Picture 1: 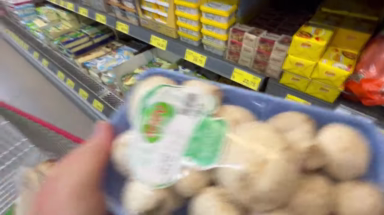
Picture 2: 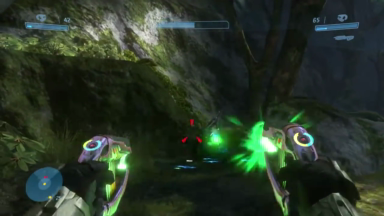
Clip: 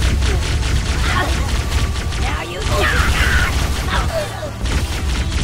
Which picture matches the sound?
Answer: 2